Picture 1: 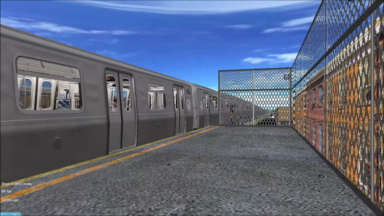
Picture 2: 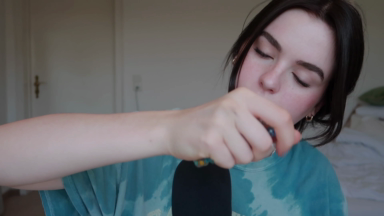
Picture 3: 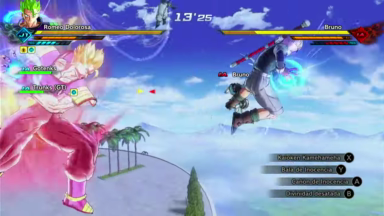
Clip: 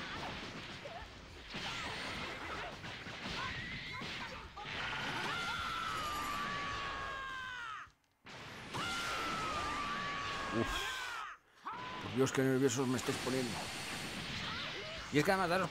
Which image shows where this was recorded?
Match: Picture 3